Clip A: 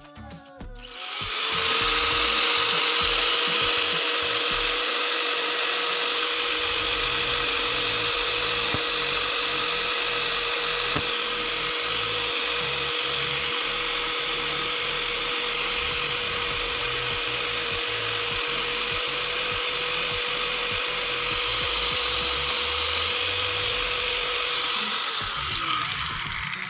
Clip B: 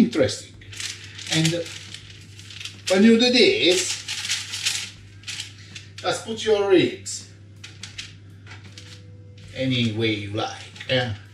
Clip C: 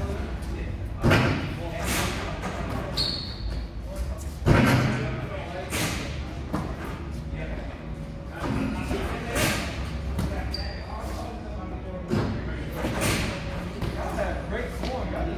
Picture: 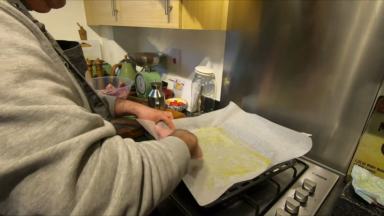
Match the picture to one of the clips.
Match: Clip B